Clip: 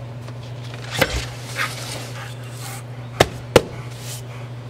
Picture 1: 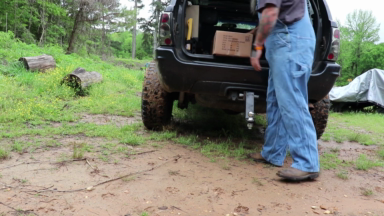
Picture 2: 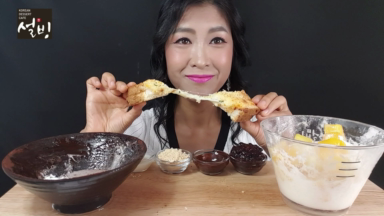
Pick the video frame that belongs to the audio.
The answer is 1